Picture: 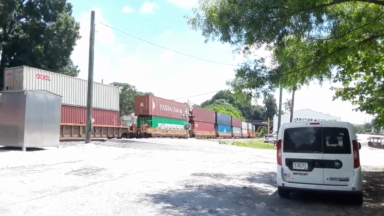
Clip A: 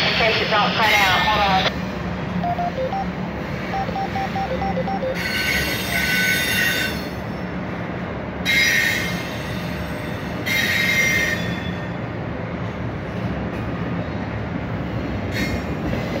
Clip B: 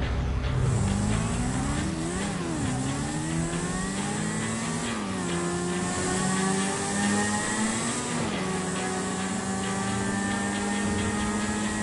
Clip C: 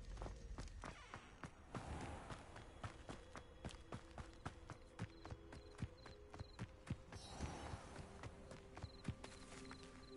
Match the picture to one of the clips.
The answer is A